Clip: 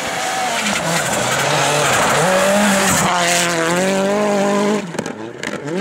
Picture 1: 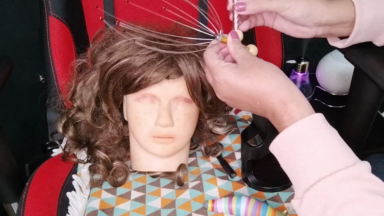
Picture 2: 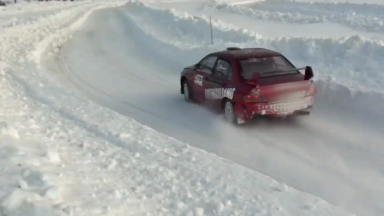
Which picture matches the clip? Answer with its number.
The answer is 2